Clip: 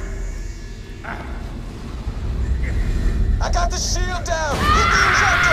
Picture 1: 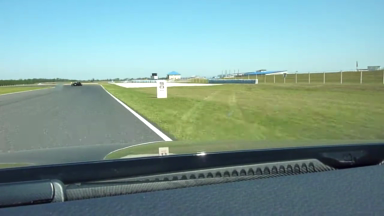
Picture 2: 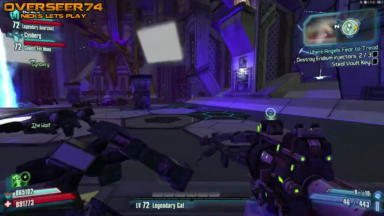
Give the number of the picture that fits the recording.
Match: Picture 2